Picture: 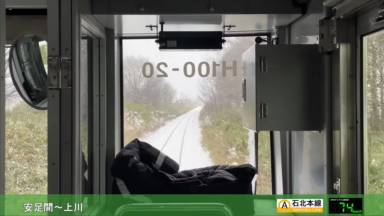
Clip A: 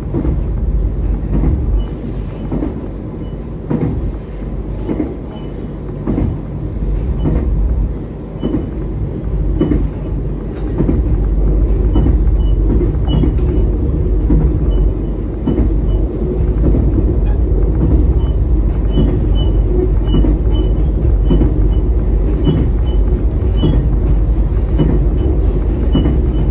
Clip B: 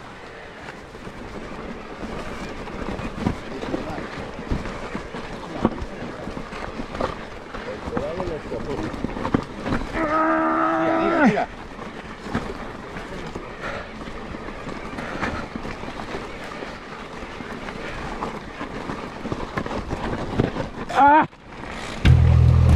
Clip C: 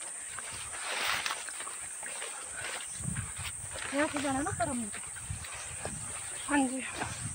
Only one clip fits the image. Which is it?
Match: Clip A